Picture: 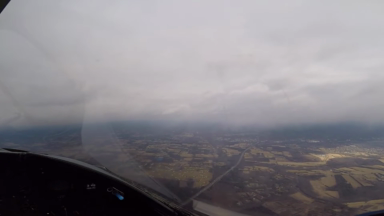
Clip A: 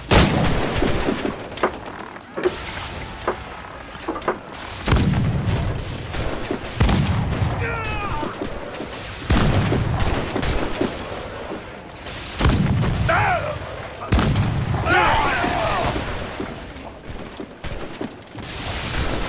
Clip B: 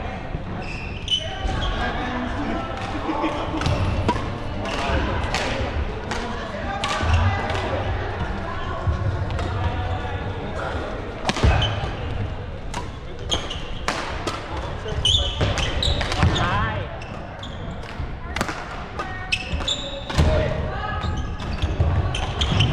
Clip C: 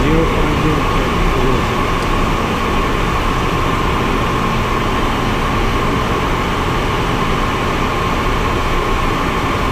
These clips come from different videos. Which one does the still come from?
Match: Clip C